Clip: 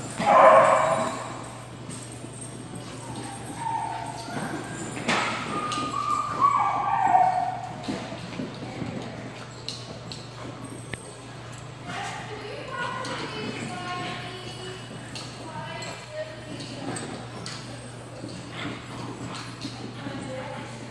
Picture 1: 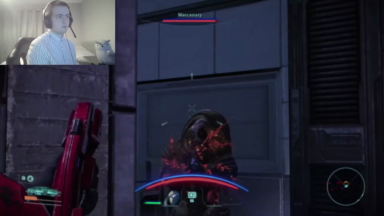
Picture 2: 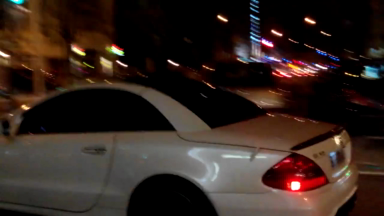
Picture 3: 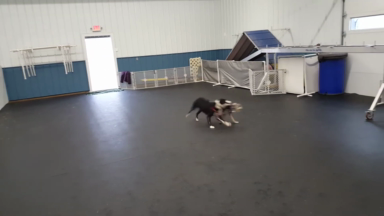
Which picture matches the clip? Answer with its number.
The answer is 3